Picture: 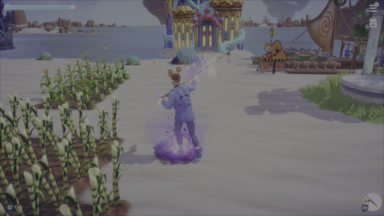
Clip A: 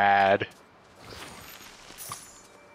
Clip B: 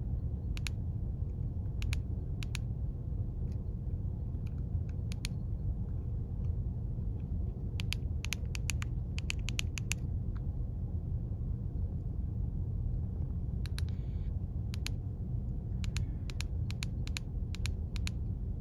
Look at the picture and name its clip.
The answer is A